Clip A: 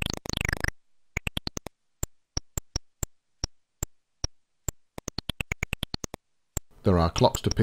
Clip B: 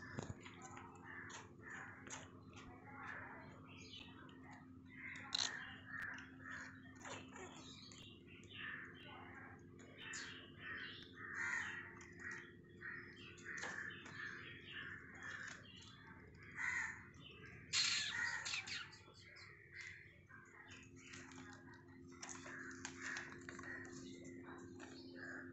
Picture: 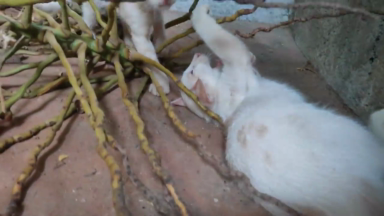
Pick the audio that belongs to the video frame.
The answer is B